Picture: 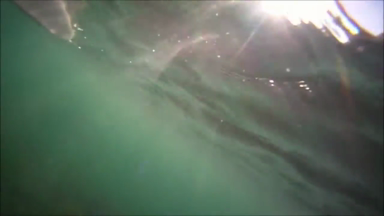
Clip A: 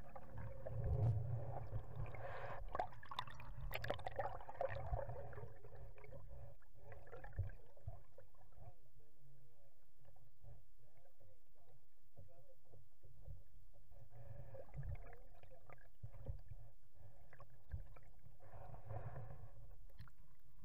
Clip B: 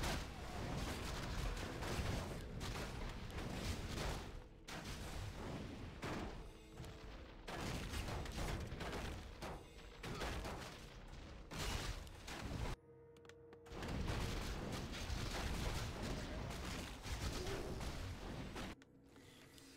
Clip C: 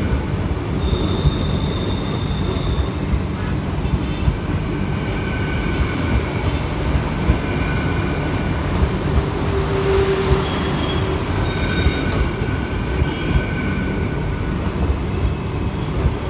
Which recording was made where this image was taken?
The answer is A